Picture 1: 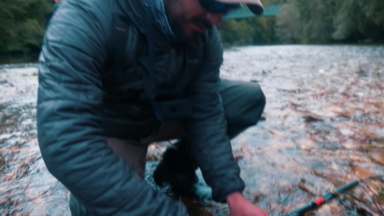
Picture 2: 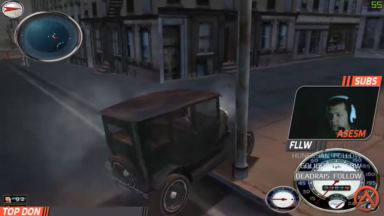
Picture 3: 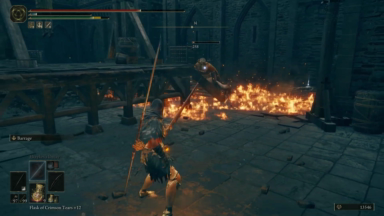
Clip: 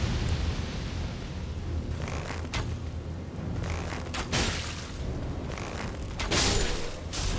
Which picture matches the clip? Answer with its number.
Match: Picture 3